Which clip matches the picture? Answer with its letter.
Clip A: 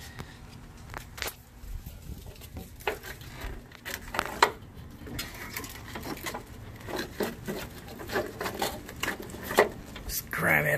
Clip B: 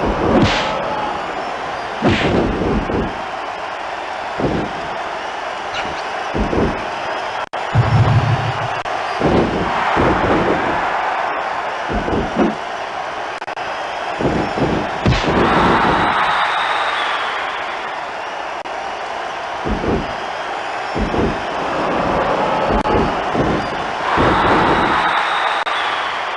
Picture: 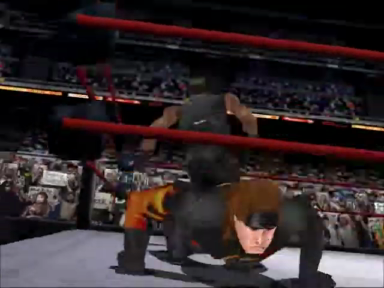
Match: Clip B